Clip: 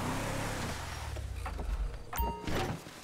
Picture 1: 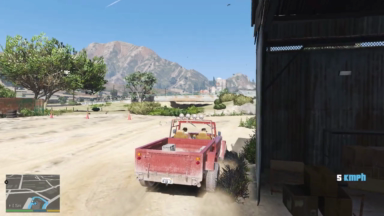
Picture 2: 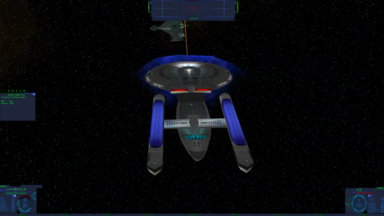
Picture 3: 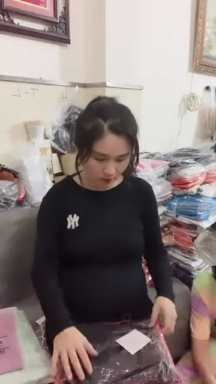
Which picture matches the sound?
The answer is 1